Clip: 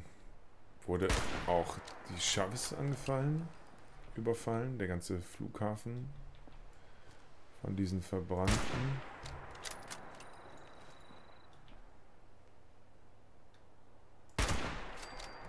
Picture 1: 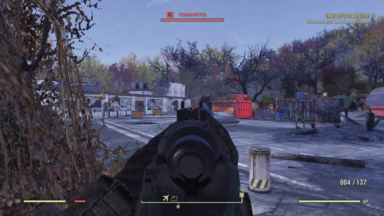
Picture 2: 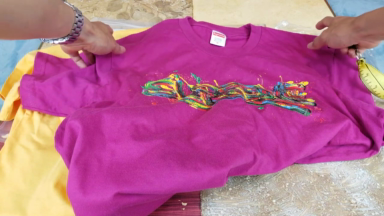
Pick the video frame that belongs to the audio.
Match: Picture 1